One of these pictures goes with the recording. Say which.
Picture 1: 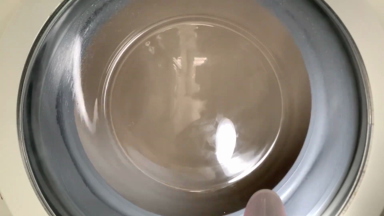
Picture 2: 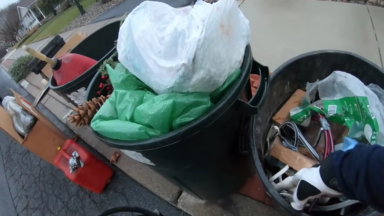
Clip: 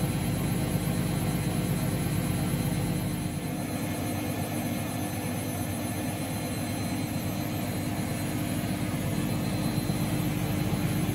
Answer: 1